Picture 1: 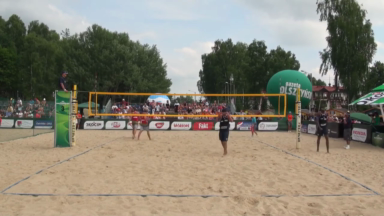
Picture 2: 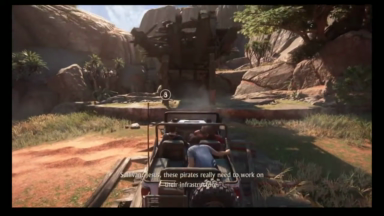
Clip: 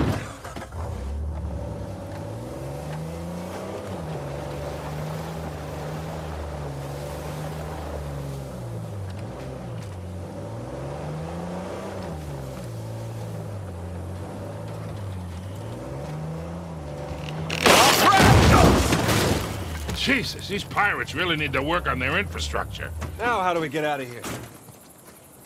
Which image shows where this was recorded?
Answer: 2